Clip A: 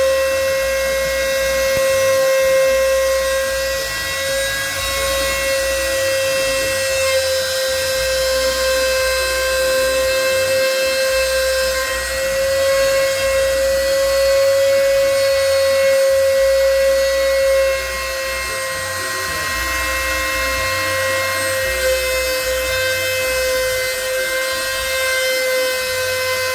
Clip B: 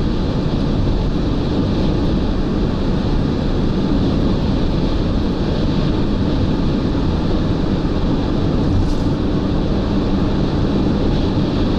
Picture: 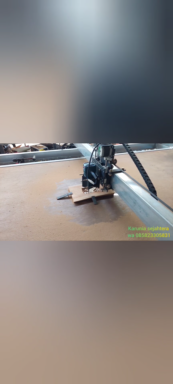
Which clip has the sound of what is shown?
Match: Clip A